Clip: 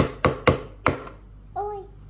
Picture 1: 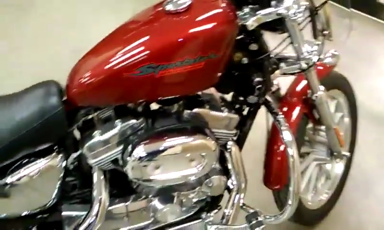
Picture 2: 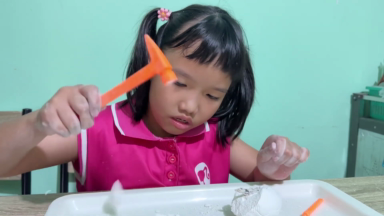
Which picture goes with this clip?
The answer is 2